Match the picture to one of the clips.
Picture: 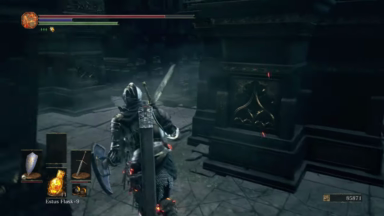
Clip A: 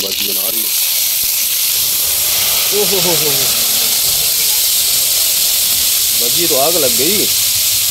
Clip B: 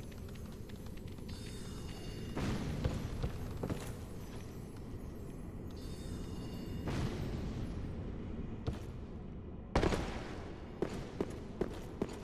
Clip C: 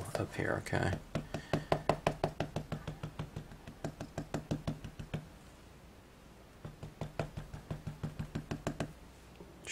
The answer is B